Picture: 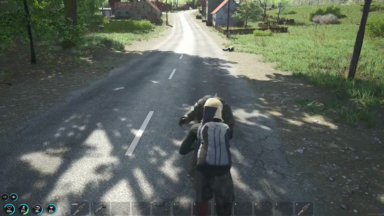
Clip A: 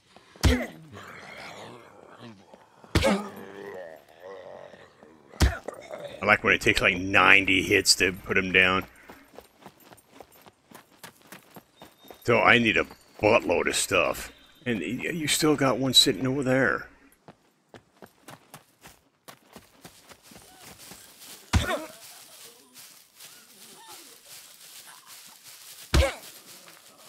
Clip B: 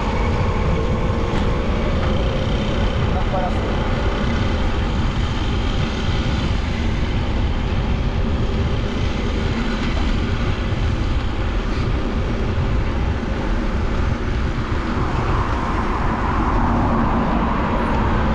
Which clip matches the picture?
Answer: A